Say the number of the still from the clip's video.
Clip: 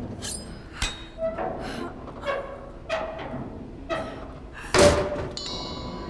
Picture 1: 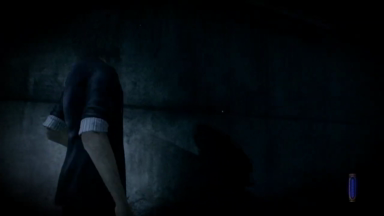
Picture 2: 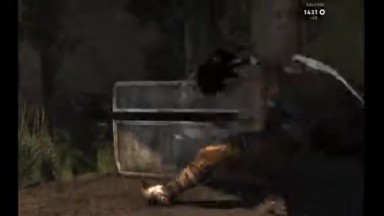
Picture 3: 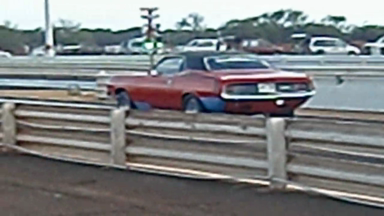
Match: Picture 2